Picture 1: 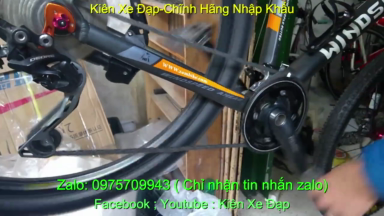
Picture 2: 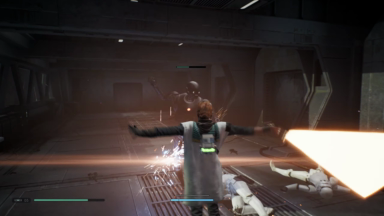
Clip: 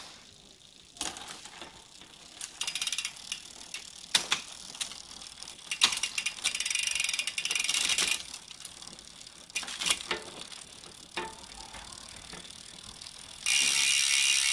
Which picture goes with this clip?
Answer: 1